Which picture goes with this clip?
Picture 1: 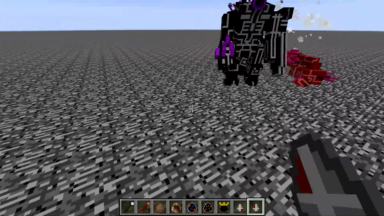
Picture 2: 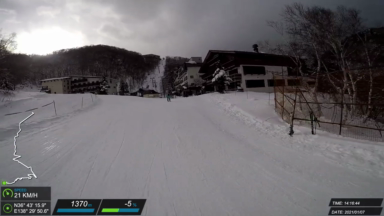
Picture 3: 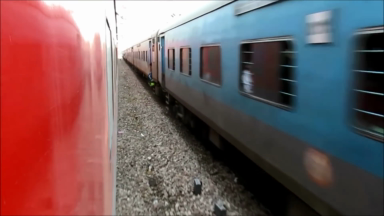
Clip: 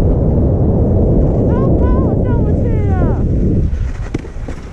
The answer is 2